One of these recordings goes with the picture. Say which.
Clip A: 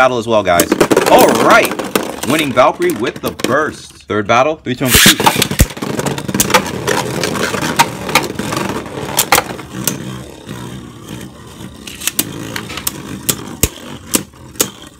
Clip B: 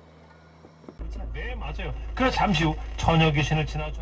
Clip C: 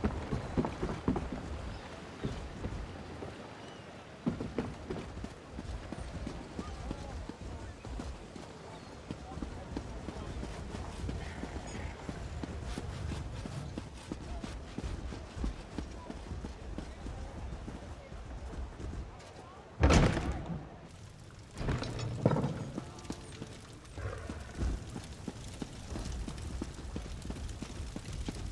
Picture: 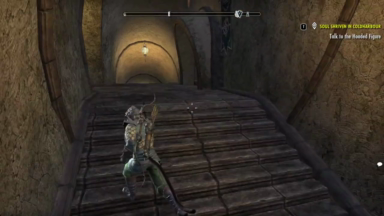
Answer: C